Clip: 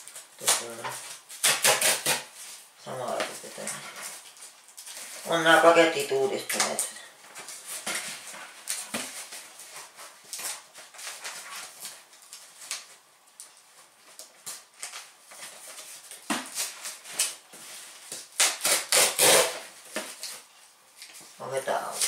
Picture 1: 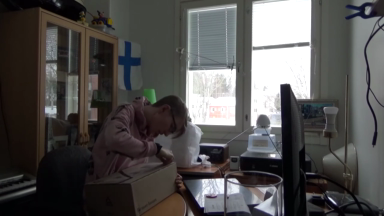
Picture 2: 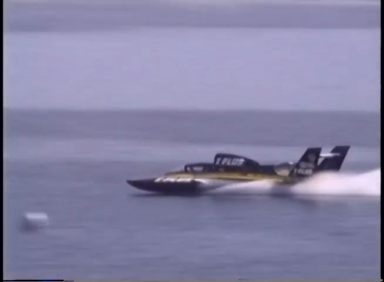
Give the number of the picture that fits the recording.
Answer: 1